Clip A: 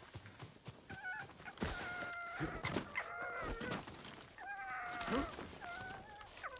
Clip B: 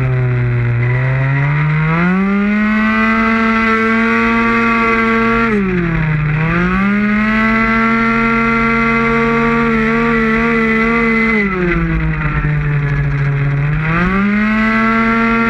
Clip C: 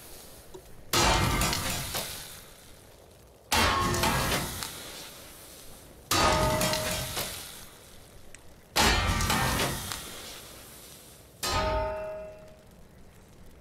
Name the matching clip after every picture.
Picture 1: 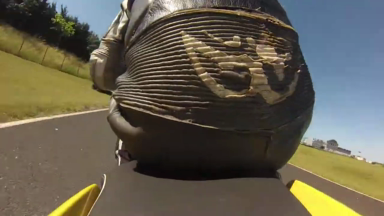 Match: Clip B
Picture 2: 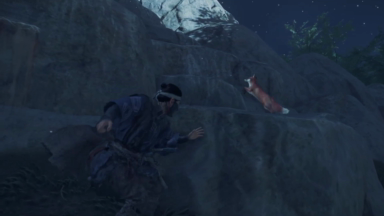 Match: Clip A